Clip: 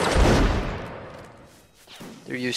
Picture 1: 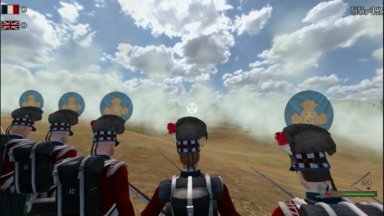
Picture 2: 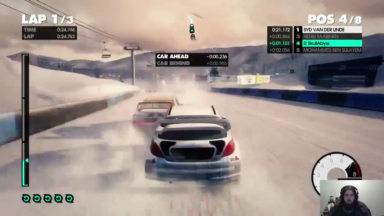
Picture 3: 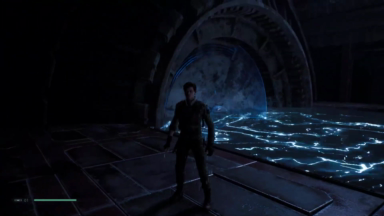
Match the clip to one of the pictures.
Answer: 1